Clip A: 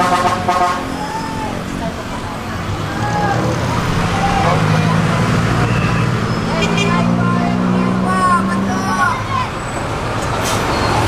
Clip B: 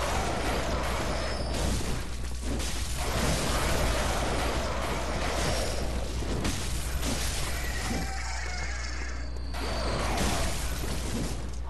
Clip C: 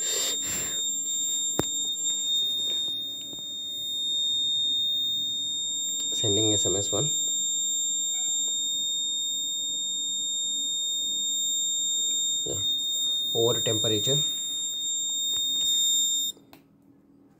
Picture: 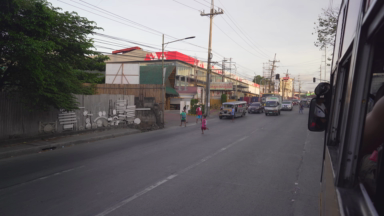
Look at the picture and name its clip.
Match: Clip A